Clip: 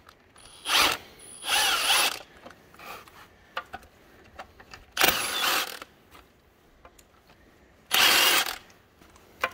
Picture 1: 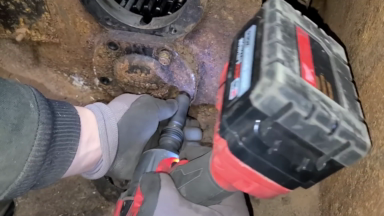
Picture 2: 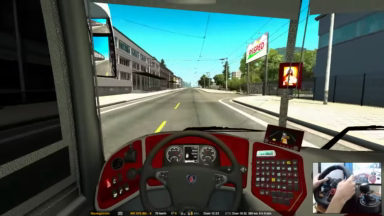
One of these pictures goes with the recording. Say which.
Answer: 1